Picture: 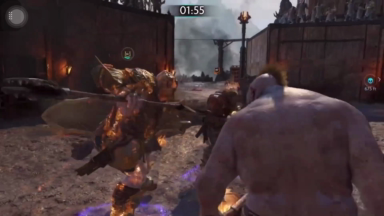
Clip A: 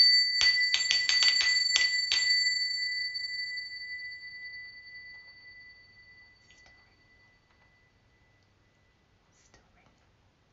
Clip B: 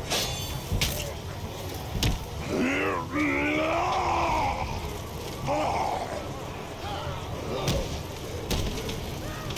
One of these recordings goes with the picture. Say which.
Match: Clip B